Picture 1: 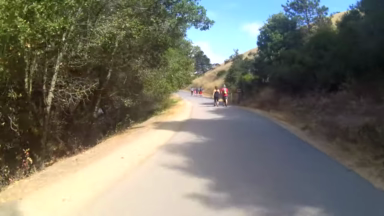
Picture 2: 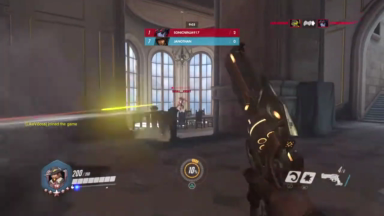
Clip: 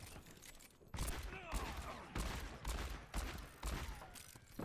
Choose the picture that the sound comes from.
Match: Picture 2